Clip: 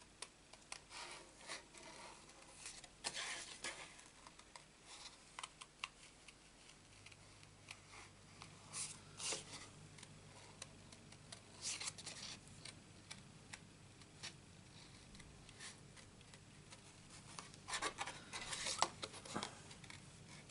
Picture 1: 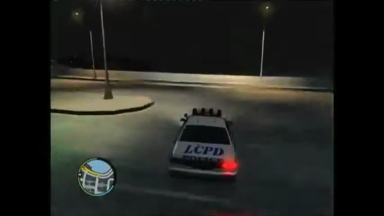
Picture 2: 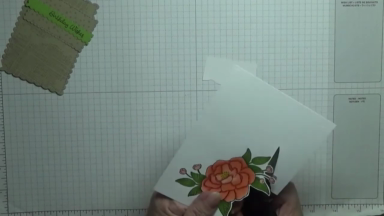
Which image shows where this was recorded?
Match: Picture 2